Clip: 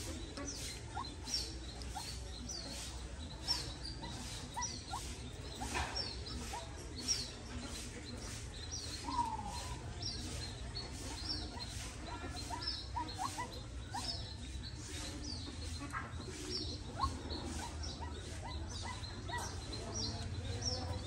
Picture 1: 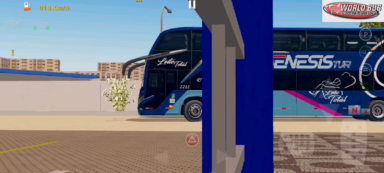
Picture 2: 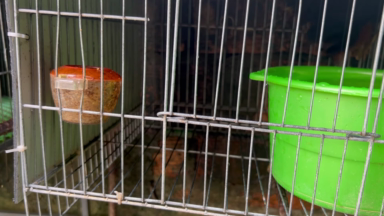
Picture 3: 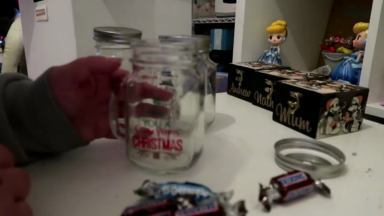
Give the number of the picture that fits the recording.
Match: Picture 2